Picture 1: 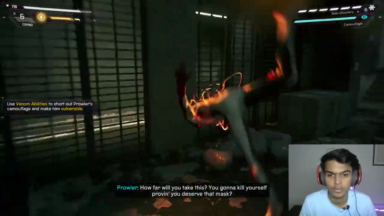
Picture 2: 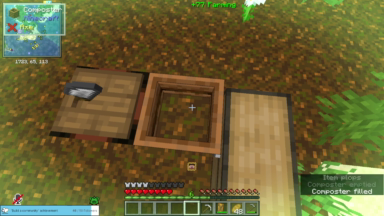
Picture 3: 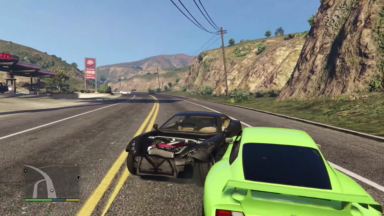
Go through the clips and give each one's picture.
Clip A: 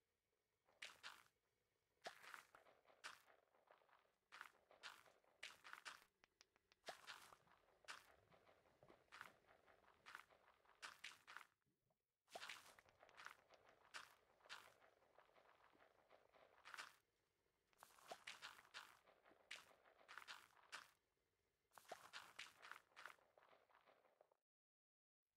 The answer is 2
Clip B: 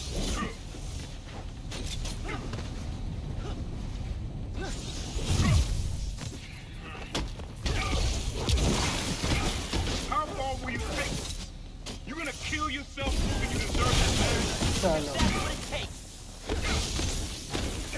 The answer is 1